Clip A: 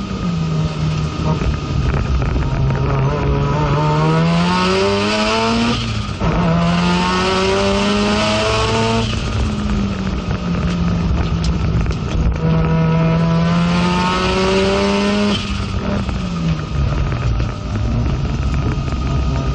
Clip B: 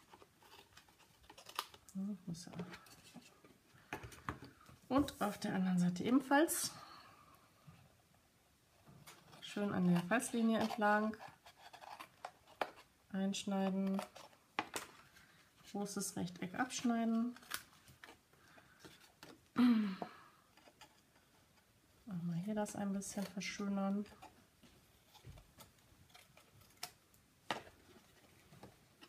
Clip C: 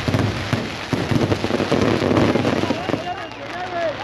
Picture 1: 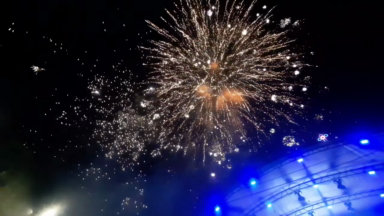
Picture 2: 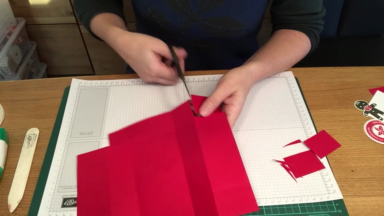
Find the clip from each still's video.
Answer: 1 C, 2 B